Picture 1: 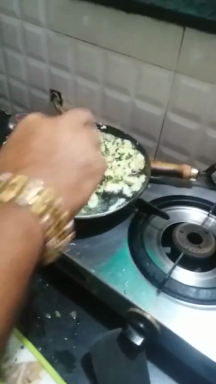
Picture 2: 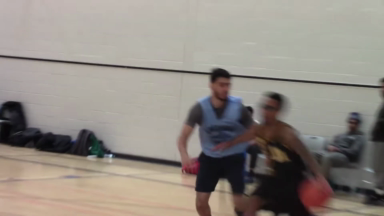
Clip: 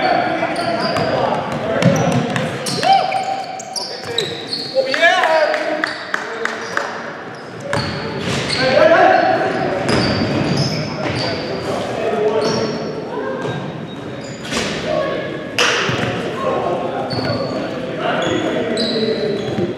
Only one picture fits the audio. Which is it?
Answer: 2